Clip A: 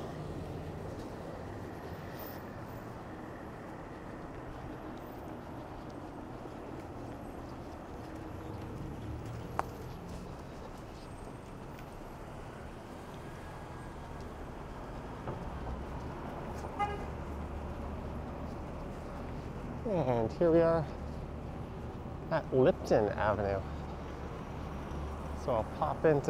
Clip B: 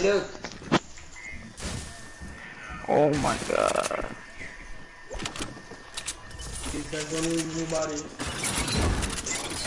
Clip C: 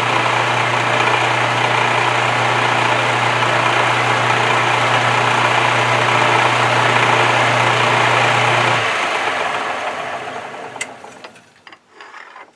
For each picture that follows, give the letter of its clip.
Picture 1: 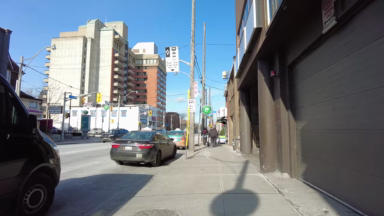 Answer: A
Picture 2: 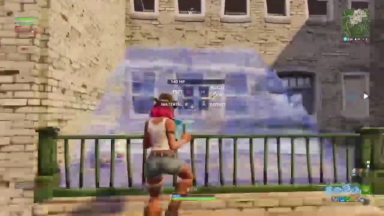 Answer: B